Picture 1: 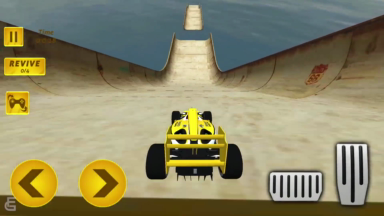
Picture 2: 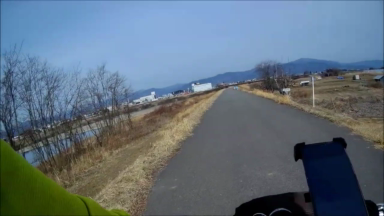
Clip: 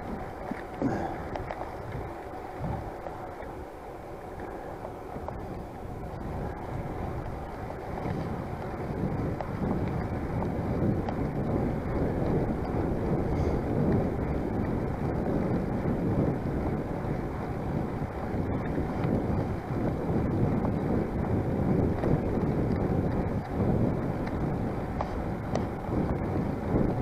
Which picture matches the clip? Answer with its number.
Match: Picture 2